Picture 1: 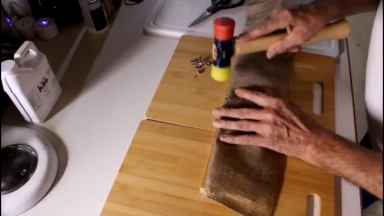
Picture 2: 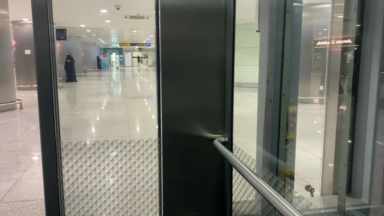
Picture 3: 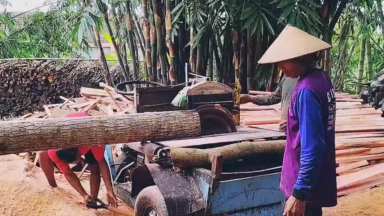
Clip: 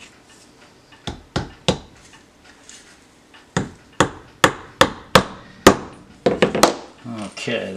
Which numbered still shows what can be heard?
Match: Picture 1